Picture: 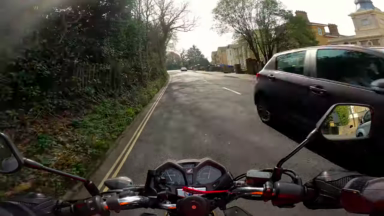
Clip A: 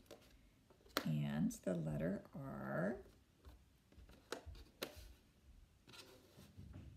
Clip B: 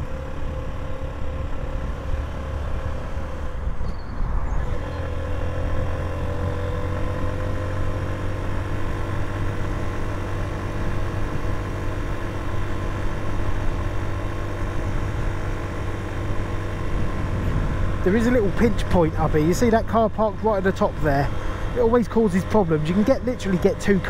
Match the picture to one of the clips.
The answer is B